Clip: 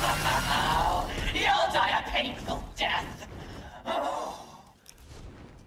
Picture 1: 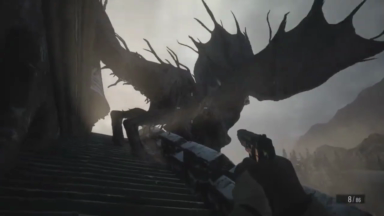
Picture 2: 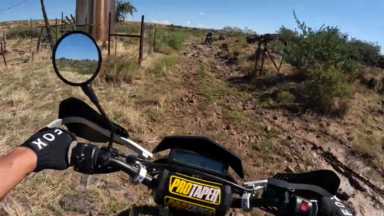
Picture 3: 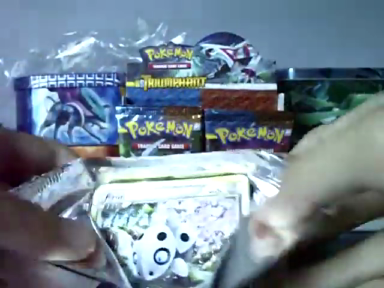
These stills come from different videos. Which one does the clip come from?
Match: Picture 1